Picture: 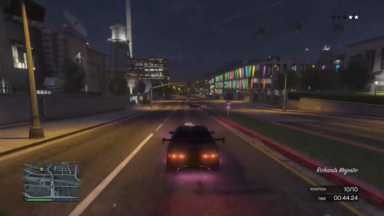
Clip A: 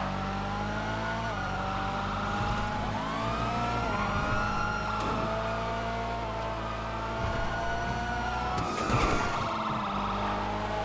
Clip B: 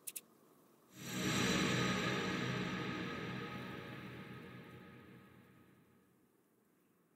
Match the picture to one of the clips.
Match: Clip A